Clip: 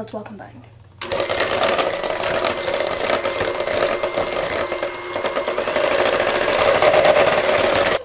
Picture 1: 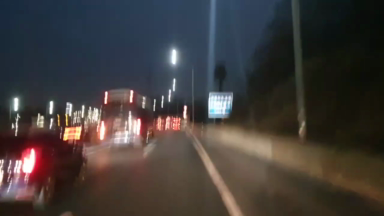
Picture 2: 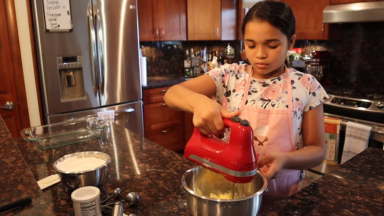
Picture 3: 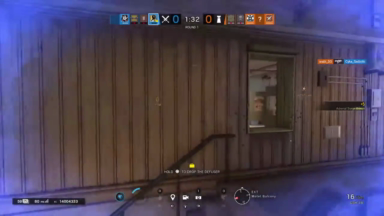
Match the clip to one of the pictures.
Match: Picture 2